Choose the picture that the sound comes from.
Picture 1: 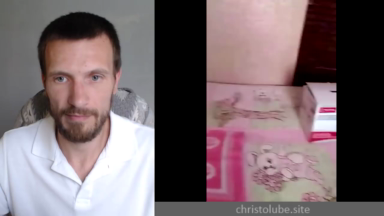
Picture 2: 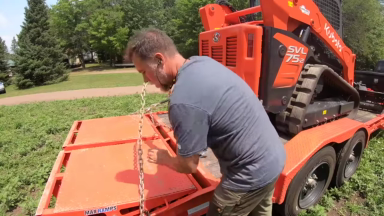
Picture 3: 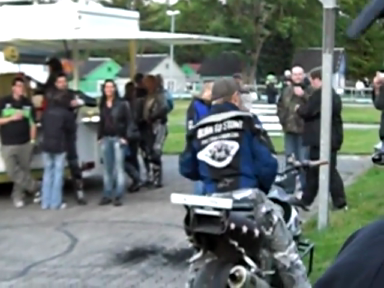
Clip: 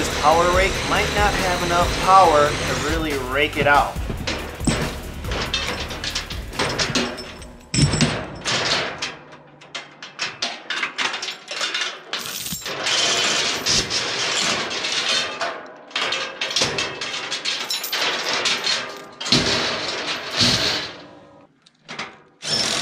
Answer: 2